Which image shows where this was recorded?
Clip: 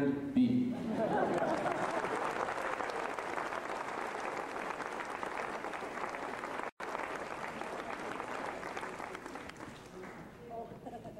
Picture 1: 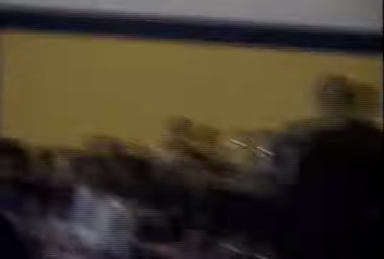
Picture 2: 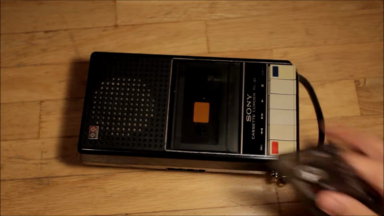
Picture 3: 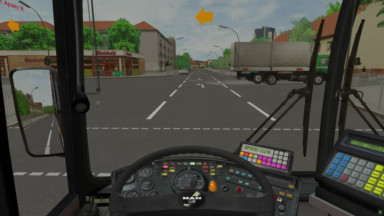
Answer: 1